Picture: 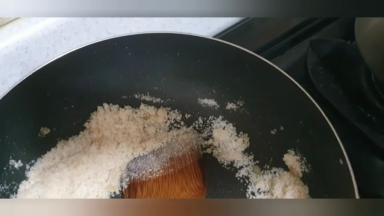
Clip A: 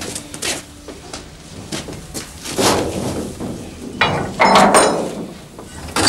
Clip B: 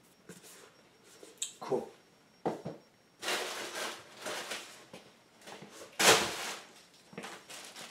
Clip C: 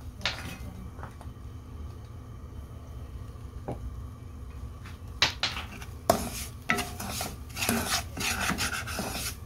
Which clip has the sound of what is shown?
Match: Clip C